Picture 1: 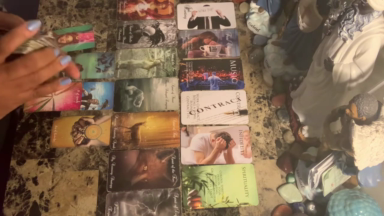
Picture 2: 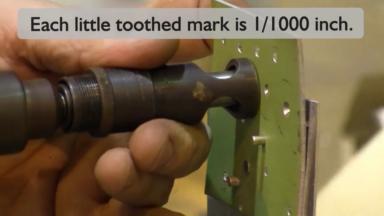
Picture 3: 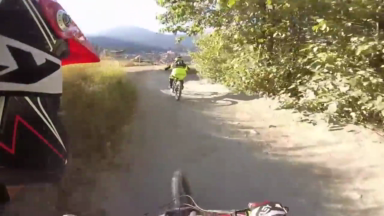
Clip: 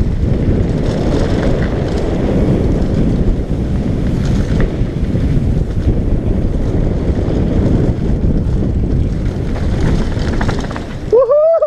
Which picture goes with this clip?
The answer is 3